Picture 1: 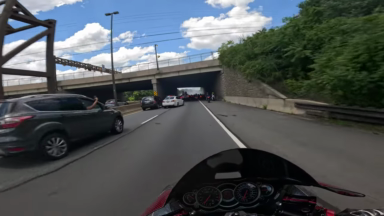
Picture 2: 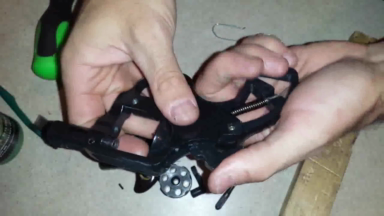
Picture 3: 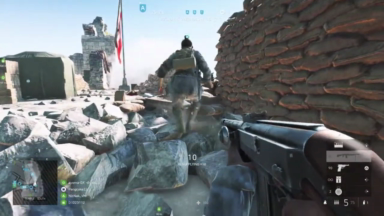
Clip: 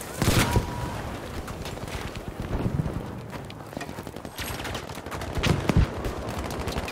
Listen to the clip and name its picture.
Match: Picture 3